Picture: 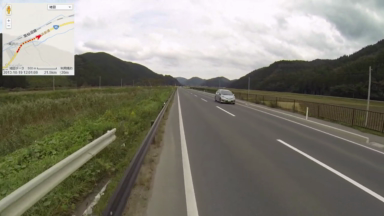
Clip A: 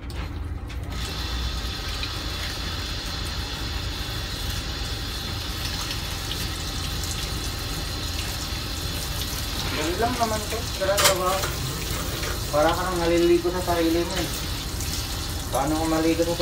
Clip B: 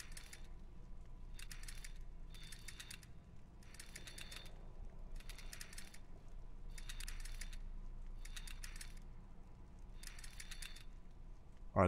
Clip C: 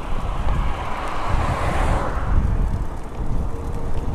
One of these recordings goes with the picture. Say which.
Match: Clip C